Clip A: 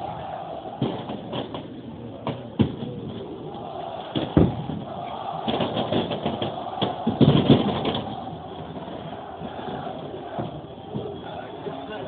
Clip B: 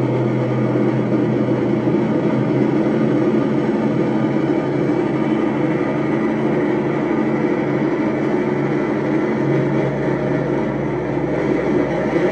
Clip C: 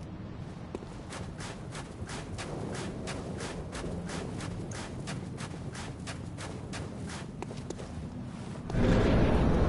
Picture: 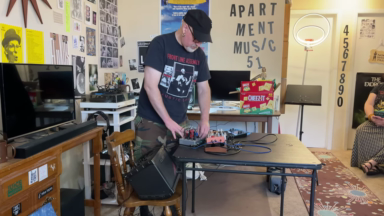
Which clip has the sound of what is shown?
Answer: B